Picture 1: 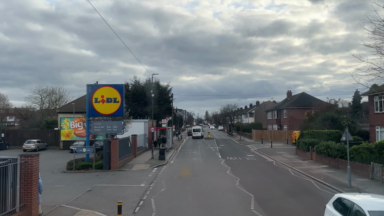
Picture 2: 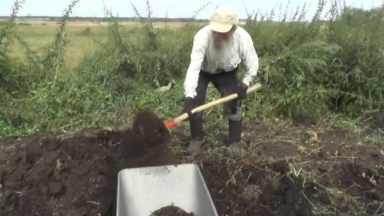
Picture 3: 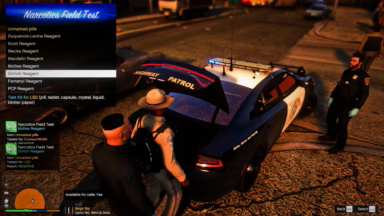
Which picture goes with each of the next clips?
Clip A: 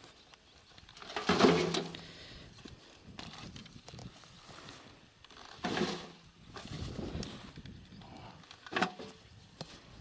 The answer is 2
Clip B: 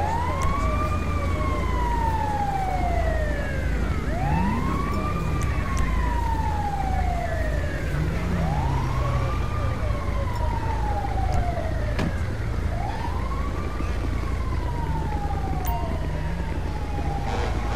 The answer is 3